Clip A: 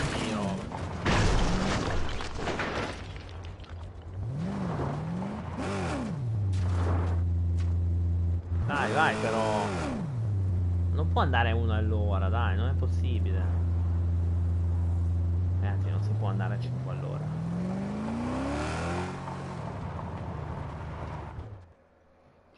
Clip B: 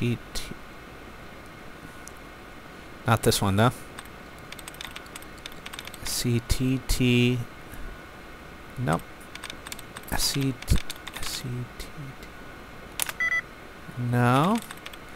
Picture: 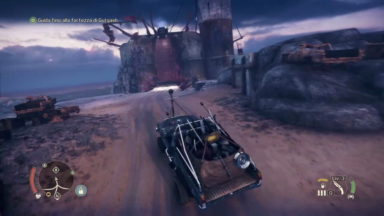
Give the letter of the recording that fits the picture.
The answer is A